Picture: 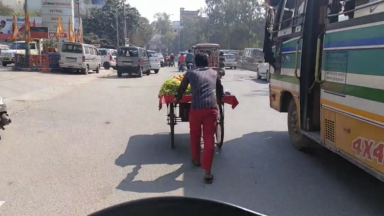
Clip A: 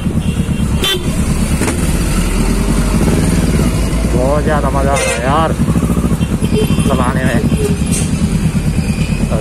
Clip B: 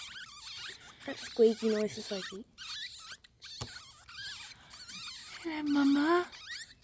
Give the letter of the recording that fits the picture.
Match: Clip A